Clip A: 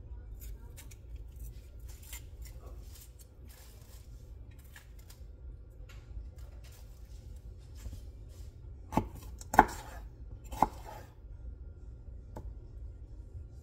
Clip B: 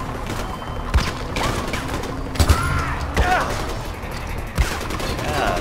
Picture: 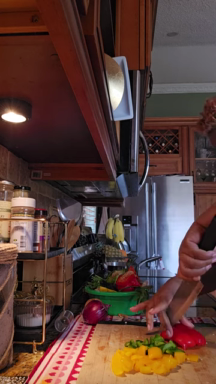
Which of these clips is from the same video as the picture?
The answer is A